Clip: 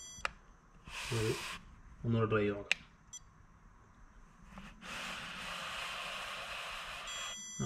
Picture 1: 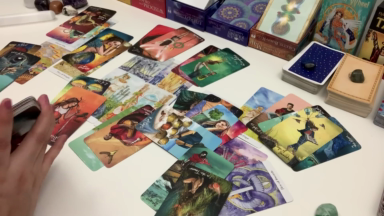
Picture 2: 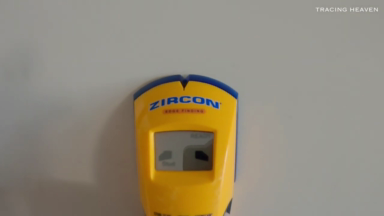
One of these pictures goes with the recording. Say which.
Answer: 2